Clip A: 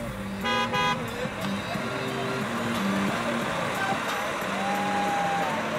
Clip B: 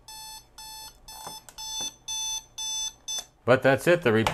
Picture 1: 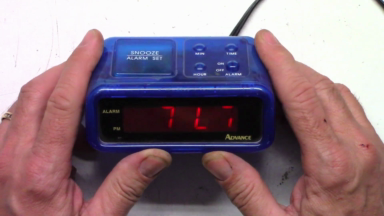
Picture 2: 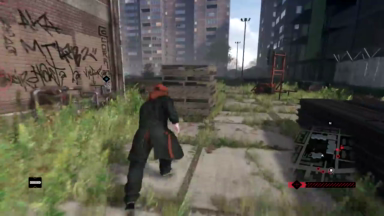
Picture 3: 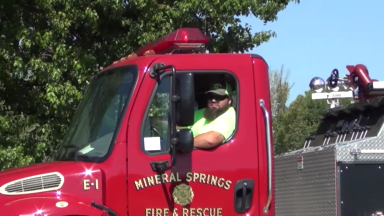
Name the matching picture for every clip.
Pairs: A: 3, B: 1